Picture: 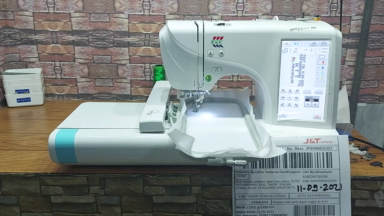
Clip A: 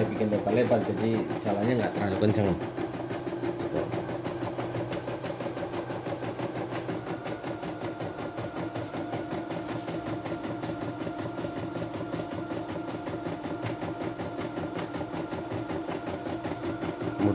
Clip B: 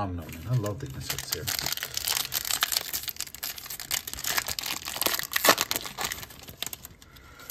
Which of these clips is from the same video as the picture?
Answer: A